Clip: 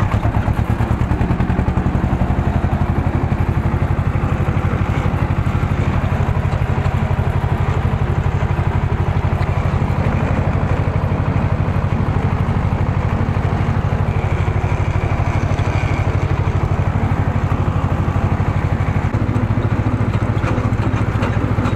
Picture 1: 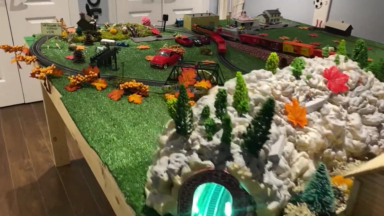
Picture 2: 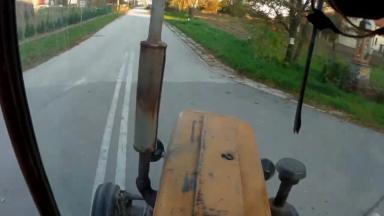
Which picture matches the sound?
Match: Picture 2